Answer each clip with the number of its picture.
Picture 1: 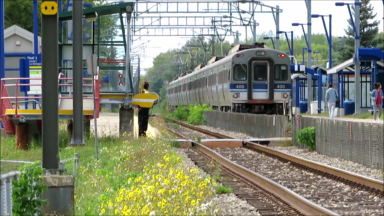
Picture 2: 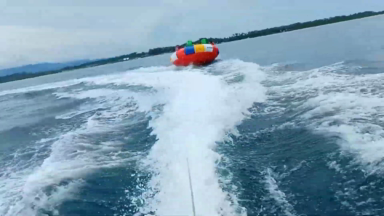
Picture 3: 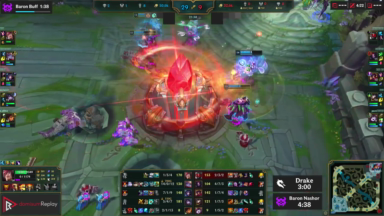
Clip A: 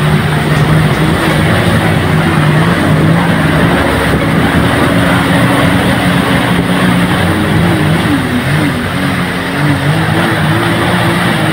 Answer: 2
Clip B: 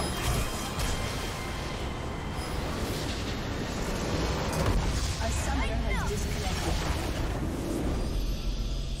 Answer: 3